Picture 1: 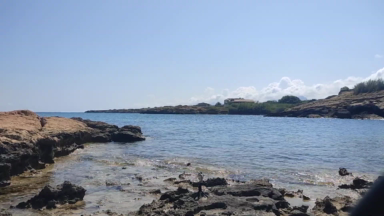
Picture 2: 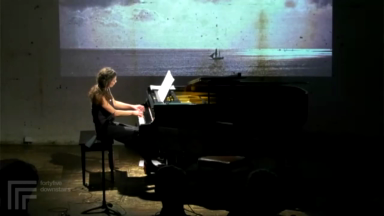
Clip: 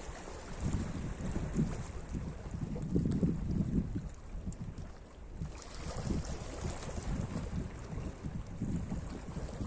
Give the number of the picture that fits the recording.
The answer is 1